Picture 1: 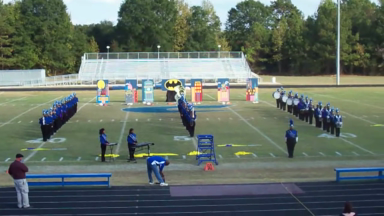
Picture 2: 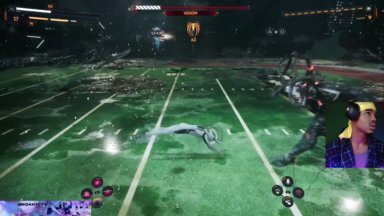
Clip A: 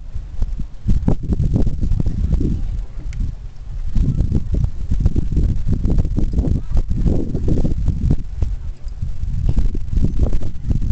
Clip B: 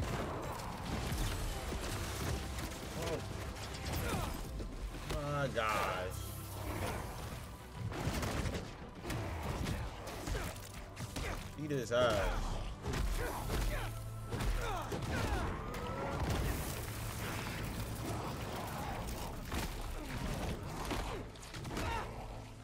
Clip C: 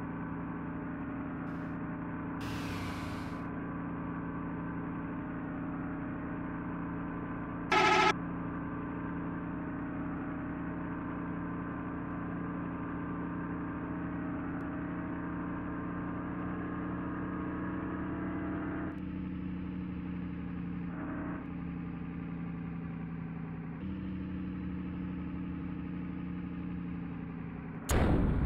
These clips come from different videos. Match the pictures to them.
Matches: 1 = A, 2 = B